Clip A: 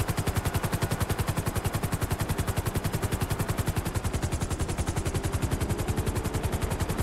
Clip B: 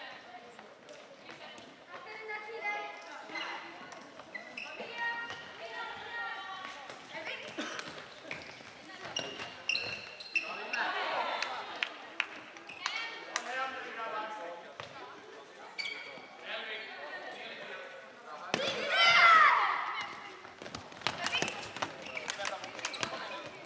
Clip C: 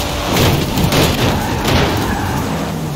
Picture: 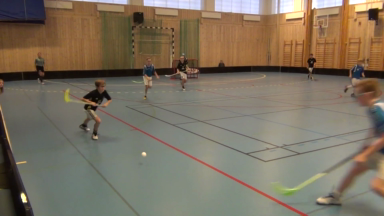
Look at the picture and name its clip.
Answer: B